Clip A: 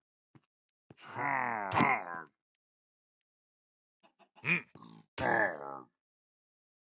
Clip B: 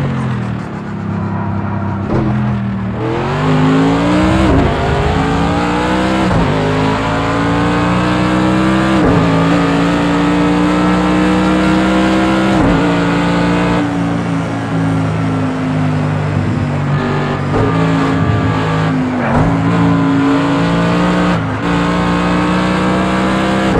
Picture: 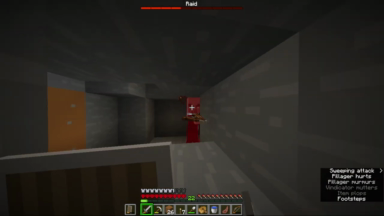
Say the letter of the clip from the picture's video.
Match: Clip A